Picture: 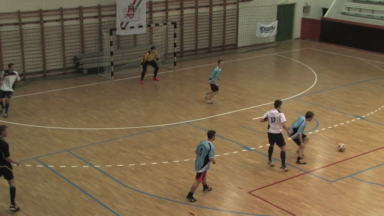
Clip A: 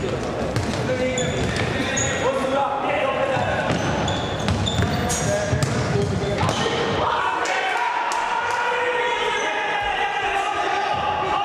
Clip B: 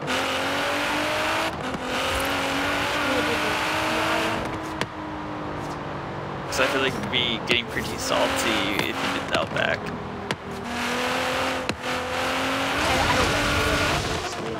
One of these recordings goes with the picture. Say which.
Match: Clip A